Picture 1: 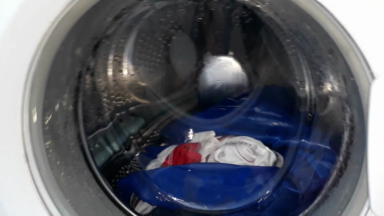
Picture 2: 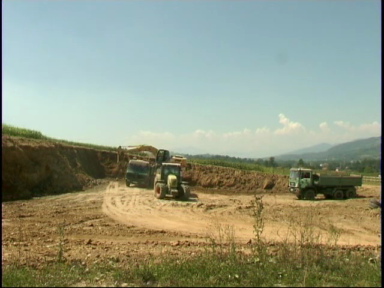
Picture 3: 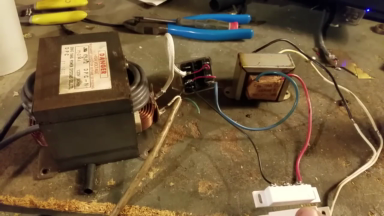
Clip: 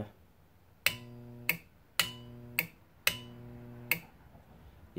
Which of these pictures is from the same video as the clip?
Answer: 3